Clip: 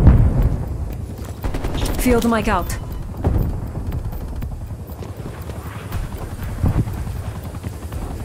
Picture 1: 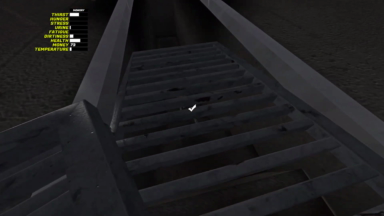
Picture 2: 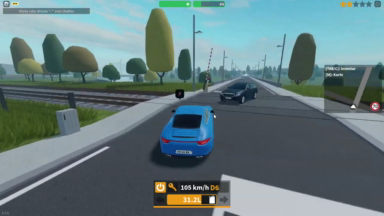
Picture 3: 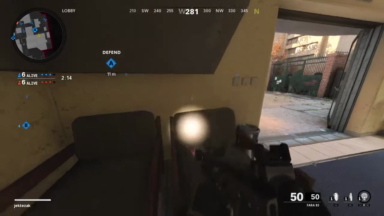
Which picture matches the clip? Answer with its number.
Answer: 3